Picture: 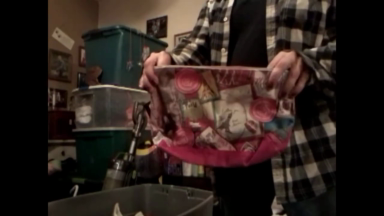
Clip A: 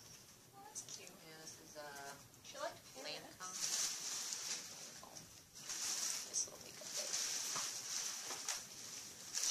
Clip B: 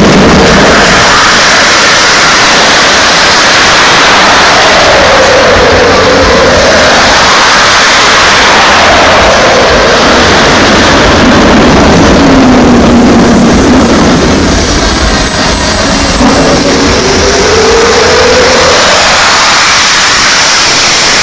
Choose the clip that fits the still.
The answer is A